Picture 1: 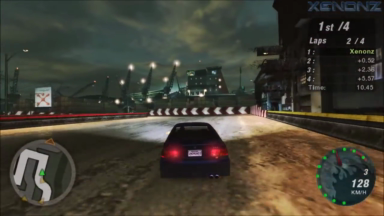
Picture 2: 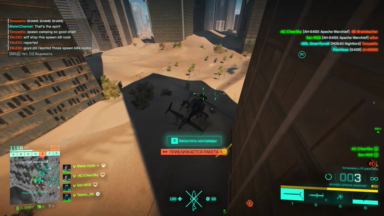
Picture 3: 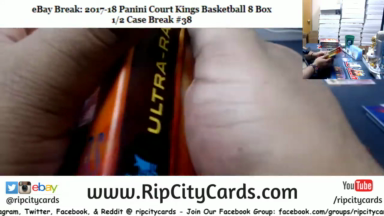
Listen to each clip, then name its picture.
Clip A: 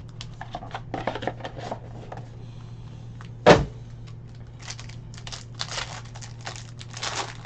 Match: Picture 3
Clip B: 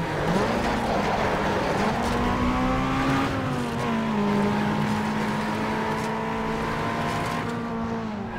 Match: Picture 1